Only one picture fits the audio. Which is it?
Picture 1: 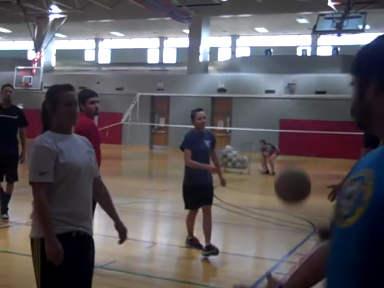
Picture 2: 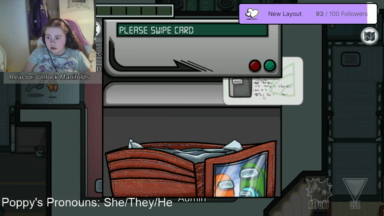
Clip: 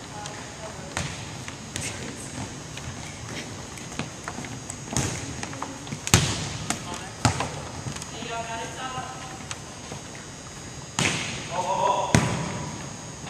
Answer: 1